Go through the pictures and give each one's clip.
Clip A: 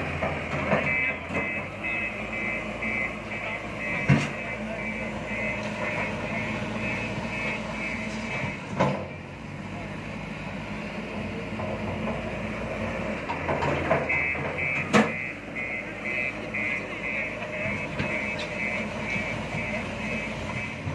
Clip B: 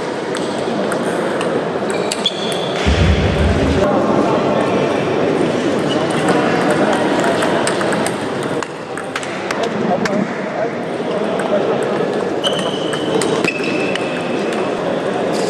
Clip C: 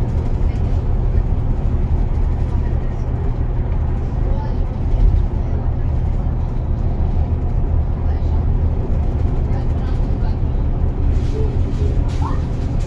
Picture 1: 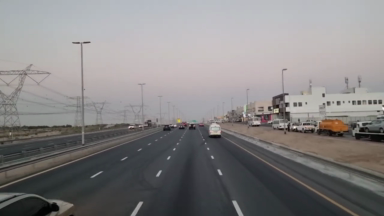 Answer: C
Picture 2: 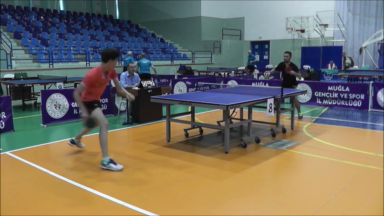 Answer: B